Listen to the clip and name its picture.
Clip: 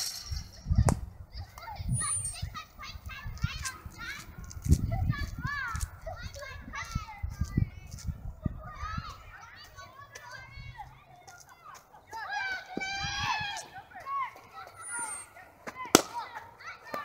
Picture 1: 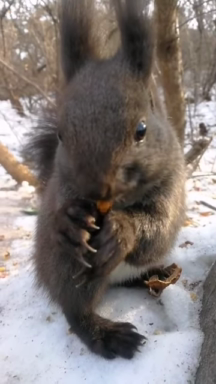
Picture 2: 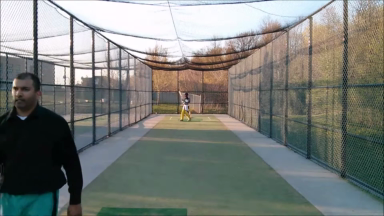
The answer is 2